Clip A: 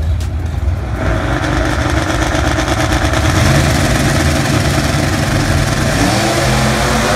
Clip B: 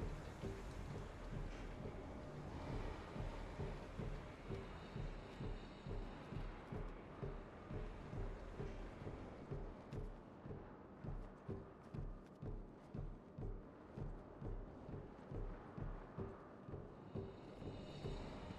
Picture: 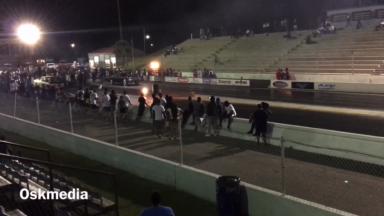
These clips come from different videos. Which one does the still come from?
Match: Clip A